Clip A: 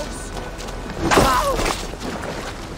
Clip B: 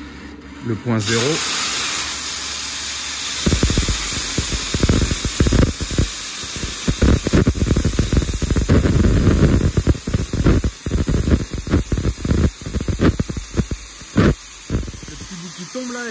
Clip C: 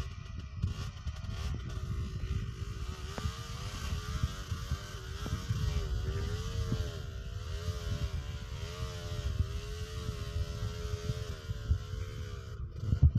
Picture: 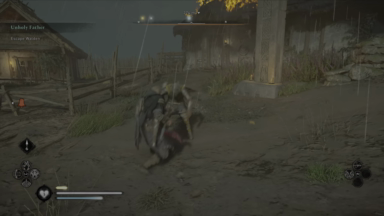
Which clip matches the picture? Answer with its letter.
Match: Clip A